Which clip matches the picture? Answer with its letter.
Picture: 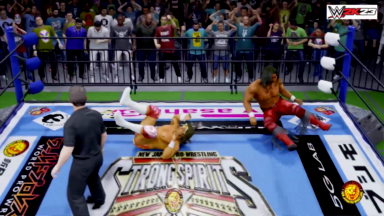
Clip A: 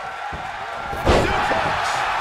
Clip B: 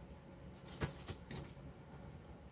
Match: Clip A